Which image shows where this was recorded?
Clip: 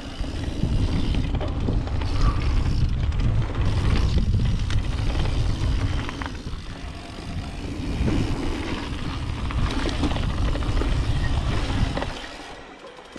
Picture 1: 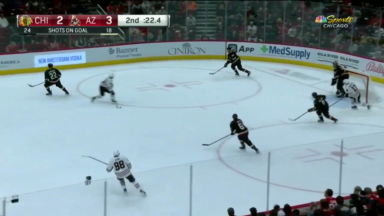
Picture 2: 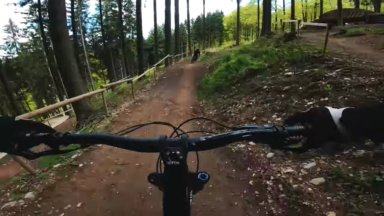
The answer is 2